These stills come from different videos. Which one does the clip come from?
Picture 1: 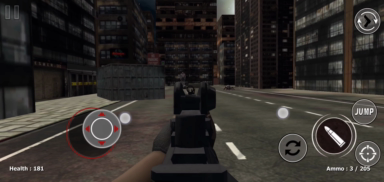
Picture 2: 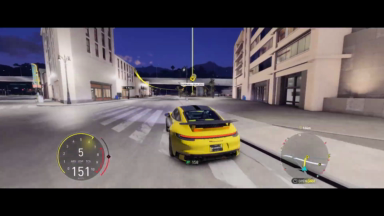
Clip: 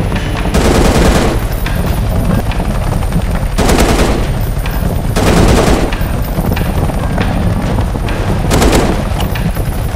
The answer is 1